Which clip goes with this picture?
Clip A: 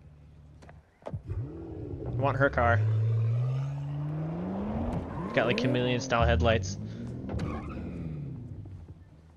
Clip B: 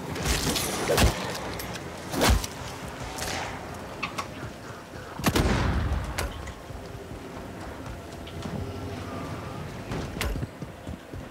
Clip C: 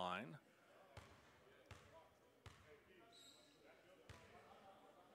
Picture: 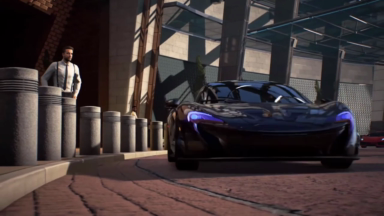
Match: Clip A